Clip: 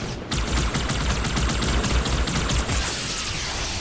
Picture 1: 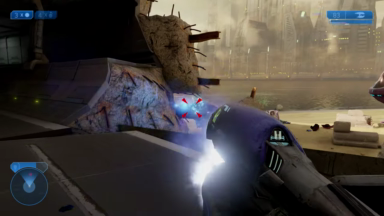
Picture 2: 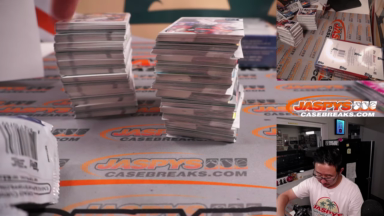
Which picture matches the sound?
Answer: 1